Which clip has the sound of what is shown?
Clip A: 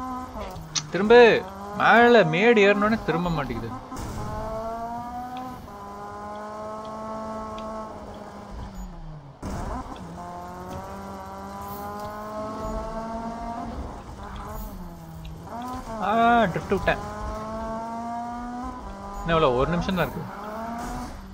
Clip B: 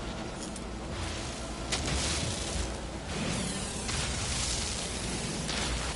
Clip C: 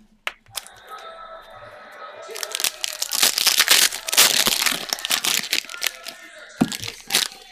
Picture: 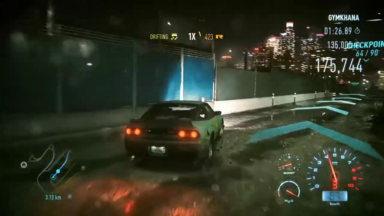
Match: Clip A